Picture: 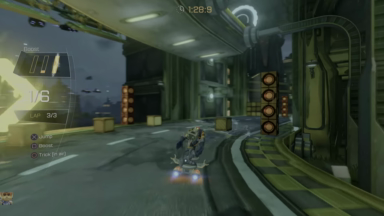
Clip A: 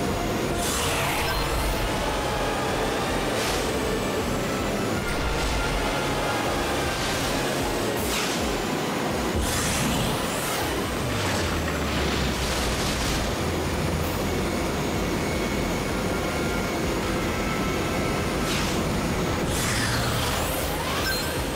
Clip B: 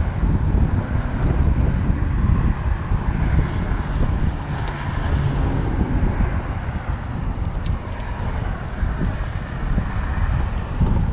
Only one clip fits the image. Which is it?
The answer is A